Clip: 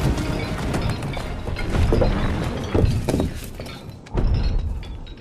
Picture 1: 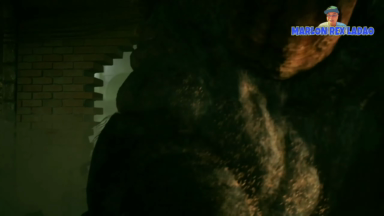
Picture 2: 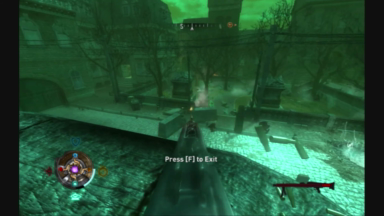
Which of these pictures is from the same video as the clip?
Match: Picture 1